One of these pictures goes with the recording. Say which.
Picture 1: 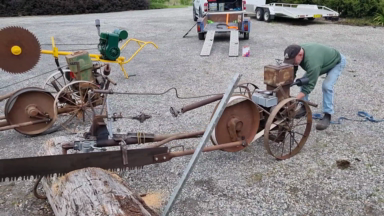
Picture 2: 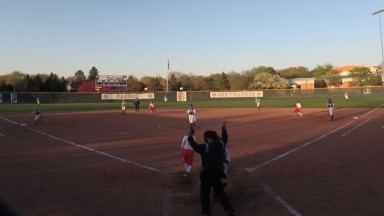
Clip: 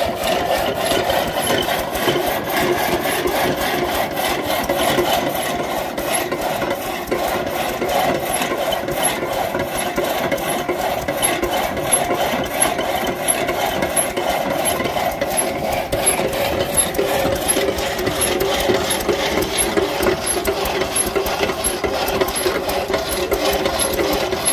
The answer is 1